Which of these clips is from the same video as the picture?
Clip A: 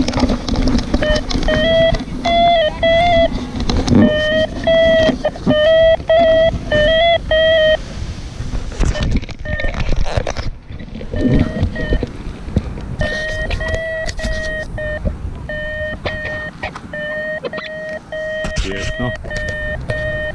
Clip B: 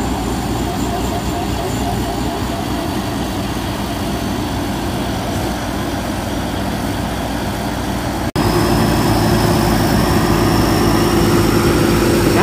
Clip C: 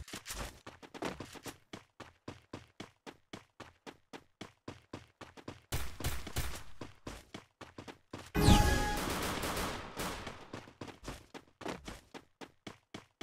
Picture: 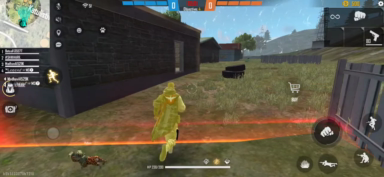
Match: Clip C